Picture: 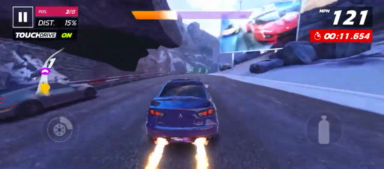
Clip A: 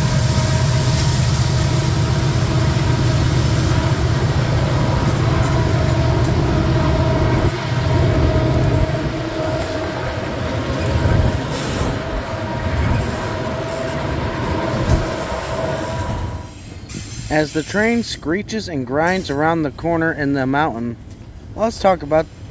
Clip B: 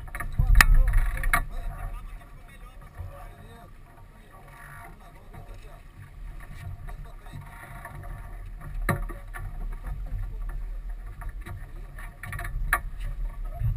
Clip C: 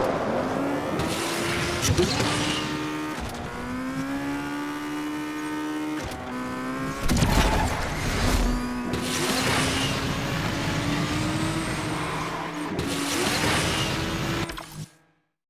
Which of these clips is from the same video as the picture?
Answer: C